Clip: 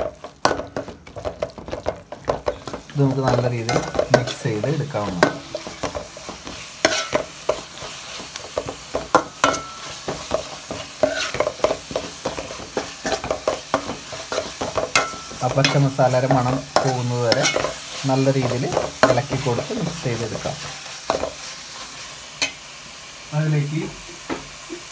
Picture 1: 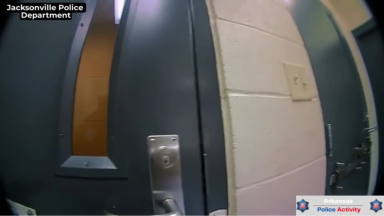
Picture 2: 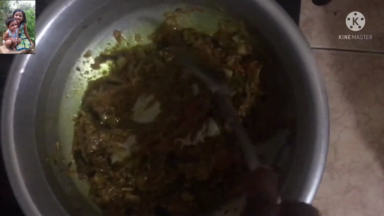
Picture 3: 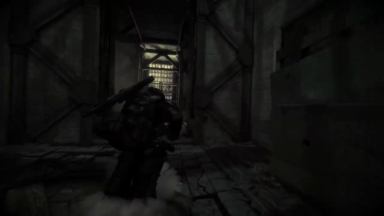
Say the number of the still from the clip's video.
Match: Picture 2